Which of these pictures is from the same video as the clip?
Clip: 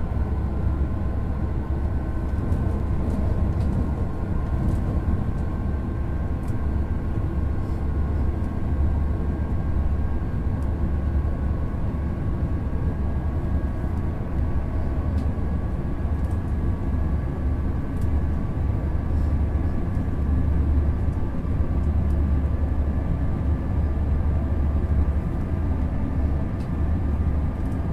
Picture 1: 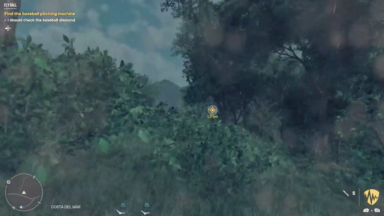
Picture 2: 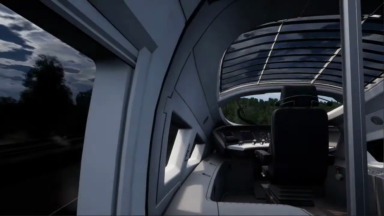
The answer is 2